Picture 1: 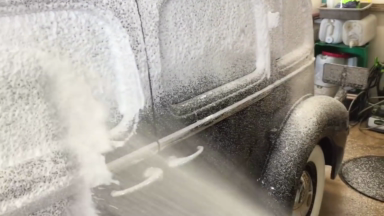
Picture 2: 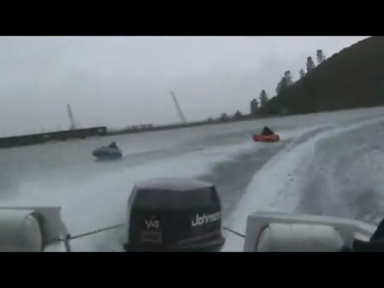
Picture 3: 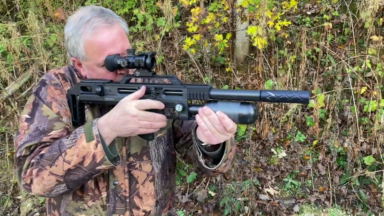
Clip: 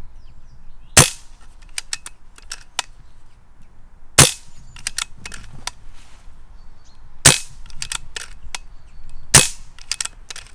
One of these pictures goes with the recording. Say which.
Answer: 3